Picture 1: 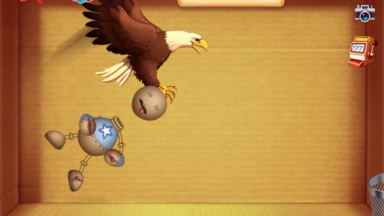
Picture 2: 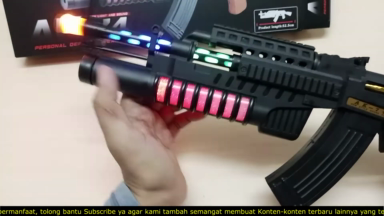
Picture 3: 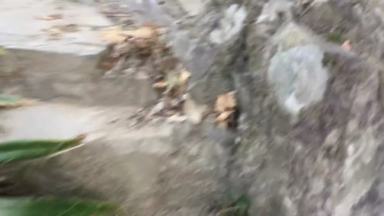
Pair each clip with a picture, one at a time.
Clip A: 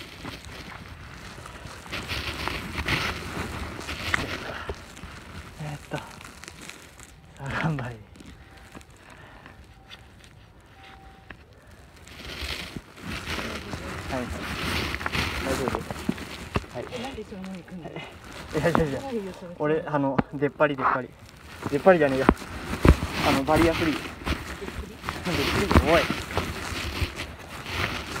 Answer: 3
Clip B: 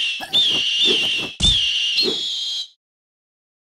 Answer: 1